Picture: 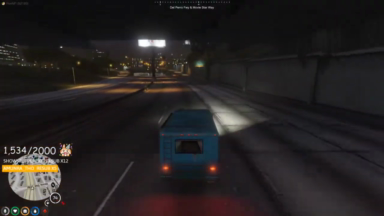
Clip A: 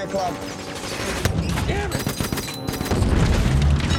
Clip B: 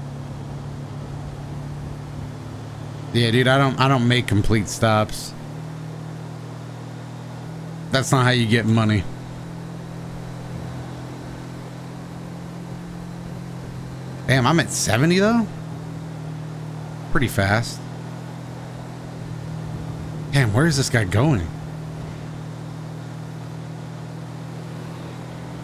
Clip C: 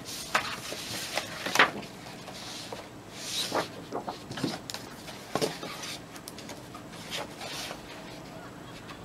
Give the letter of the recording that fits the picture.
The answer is B